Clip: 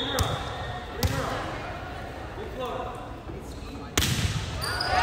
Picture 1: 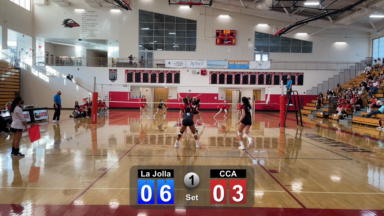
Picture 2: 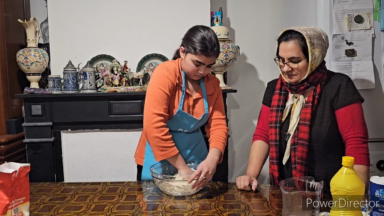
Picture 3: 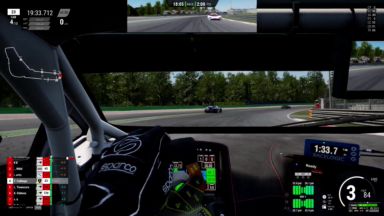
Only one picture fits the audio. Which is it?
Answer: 1